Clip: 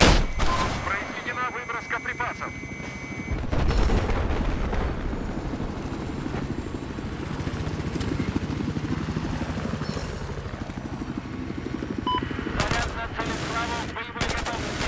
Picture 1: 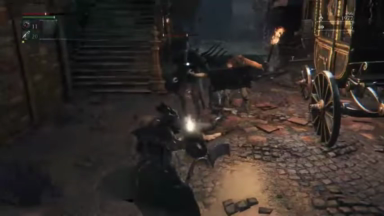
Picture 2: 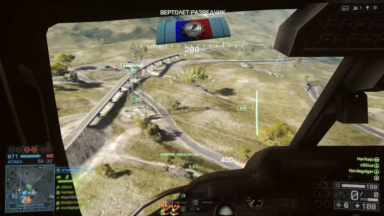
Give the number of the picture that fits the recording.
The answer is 2